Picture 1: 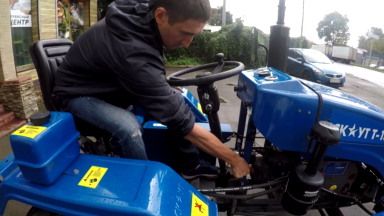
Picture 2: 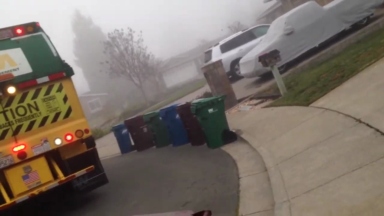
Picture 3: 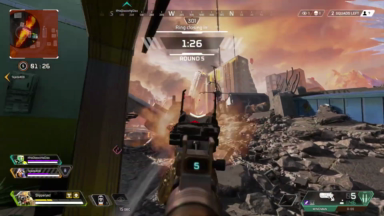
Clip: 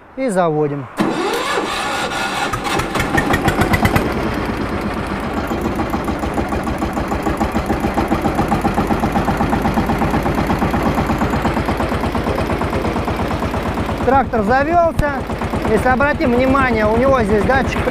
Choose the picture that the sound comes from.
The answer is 1